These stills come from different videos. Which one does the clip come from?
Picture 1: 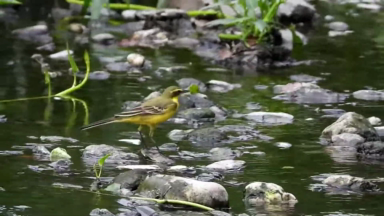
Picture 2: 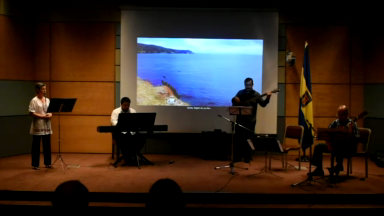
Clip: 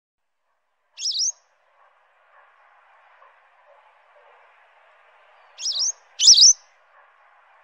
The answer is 1